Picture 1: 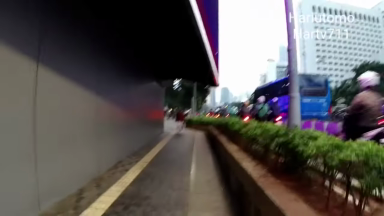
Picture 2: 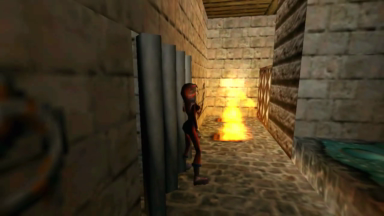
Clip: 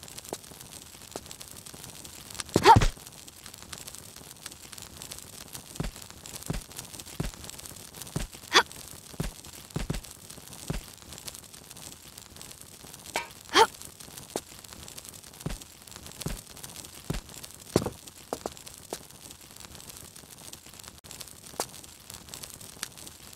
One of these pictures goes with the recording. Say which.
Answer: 2